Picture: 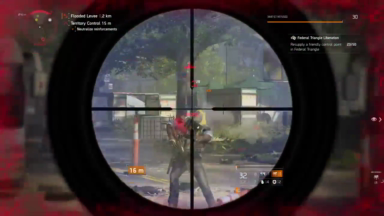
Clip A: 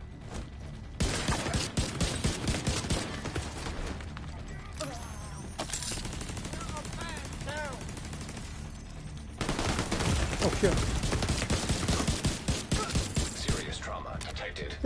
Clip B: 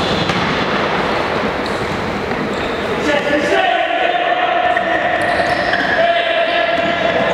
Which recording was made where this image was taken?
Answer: A